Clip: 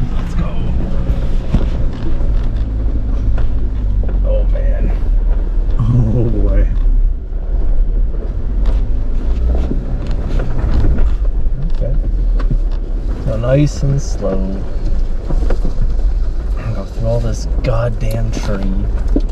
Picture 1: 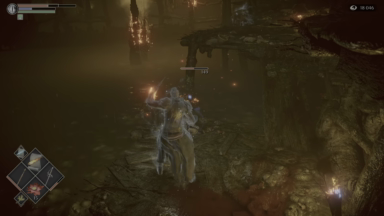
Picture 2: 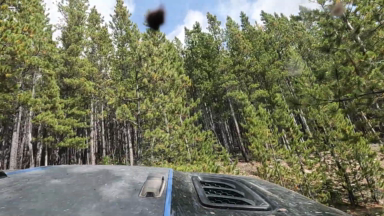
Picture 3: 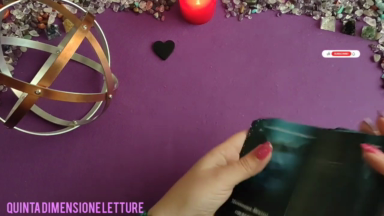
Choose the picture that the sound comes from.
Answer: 2